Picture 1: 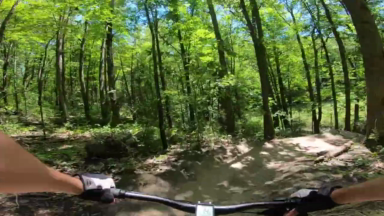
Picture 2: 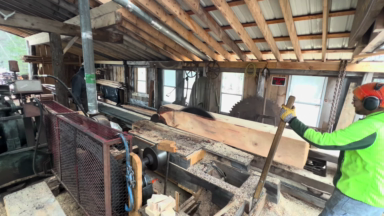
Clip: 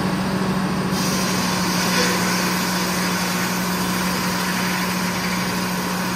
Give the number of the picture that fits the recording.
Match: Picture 2